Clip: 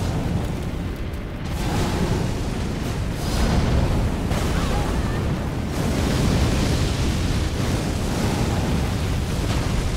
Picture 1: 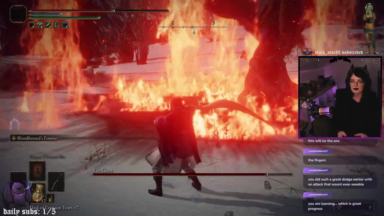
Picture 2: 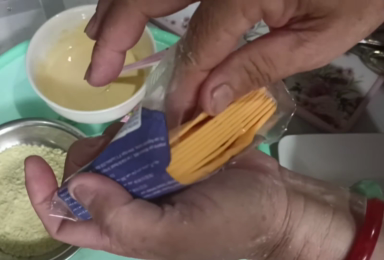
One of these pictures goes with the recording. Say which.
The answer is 1